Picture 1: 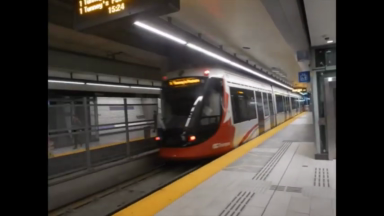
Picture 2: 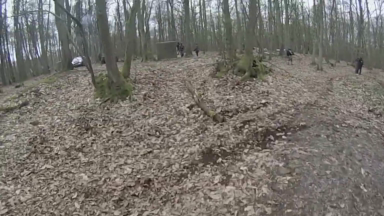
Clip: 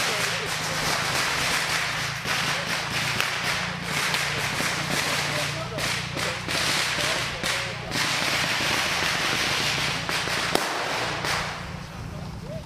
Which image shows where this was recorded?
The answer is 2